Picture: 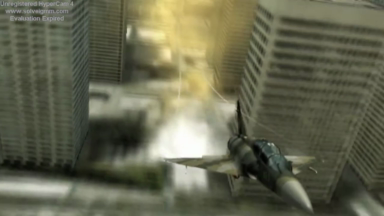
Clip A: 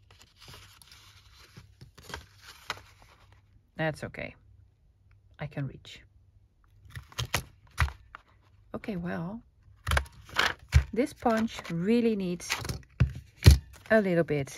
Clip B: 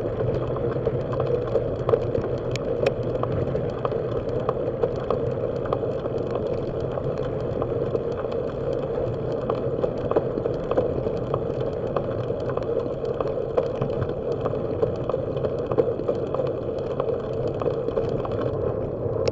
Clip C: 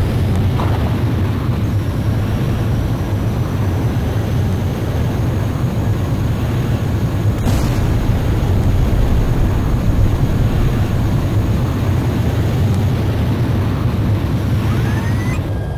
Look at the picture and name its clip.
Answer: C